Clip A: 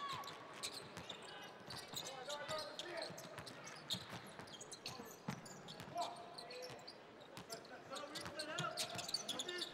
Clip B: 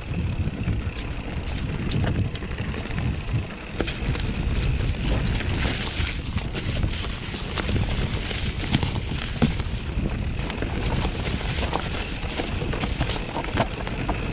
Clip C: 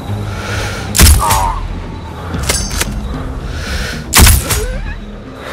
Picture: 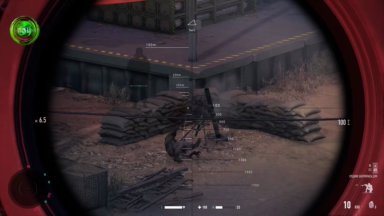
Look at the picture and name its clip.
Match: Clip C